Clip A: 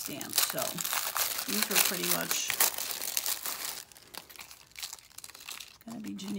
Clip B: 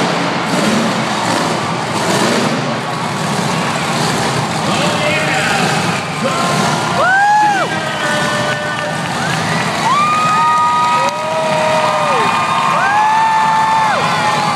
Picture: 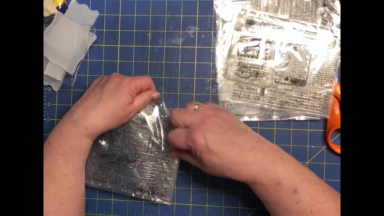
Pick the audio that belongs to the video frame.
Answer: A